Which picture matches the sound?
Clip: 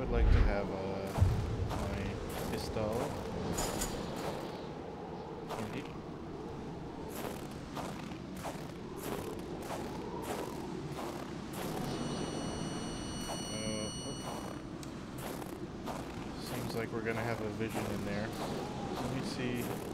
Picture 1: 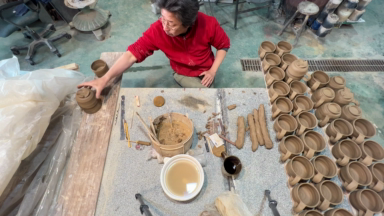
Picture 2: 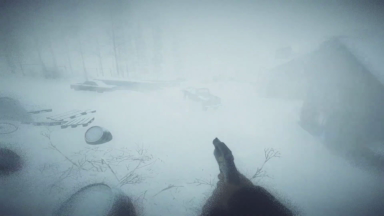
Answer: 2